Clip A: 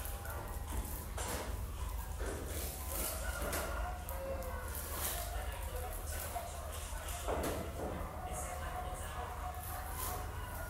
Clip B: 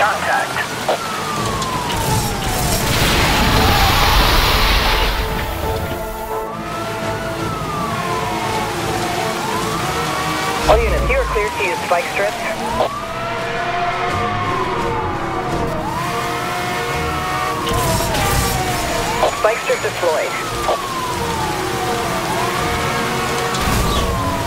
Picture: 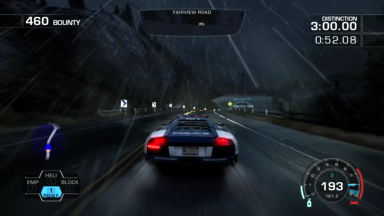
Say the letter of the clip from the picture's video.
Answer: B